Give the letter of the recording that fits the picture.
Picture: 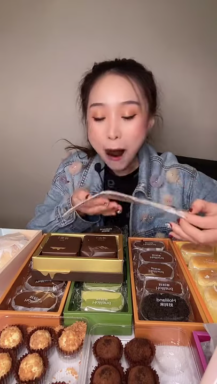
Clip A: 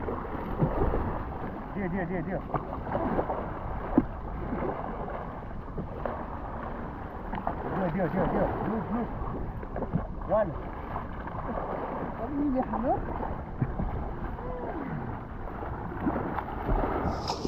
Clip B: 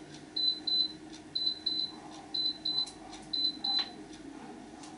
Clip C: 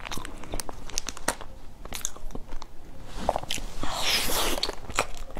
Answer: C